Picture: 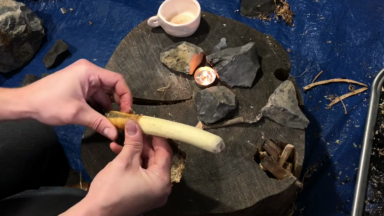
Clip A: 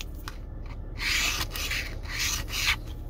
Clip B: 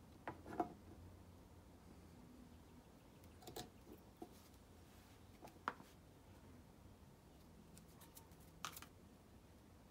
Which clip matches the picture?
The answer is B